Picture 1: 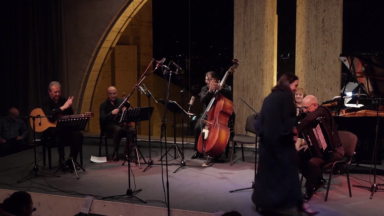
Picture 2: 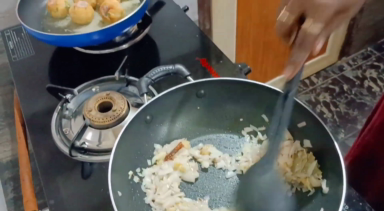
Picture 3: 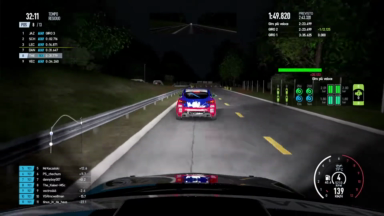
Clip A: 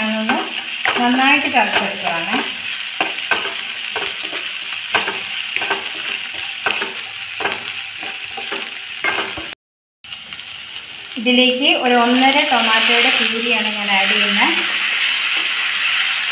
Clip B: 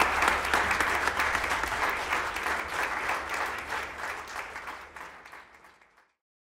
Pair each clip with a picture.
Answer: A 2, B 1